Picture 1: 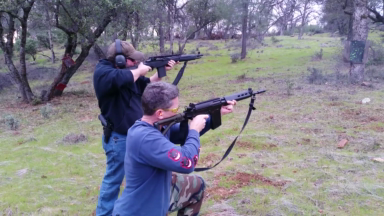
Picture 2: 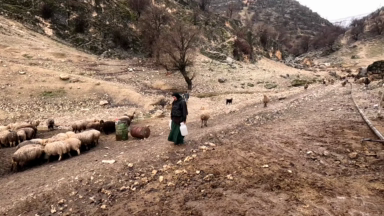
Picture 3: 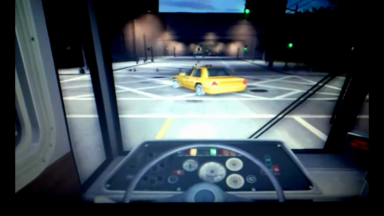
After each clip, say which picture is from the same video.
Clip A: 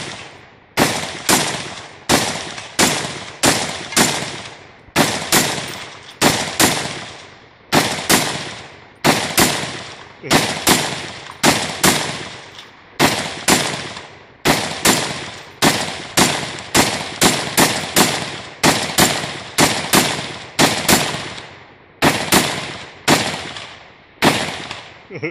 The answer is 1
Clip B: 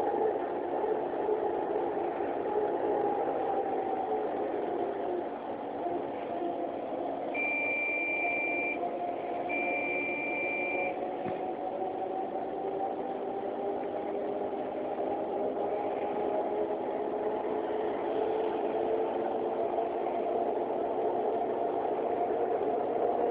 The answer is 3